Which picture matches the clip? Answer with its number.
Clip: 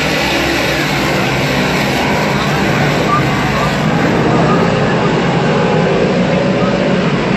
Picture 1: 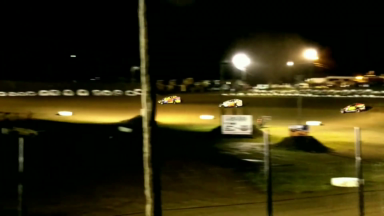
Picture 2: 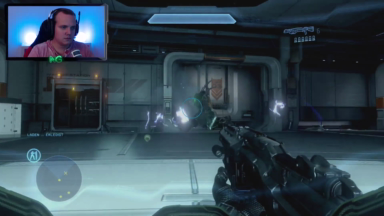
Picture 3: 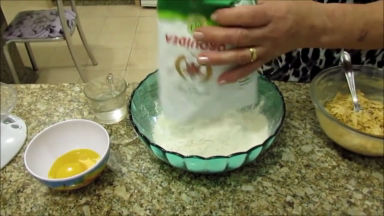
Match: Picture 1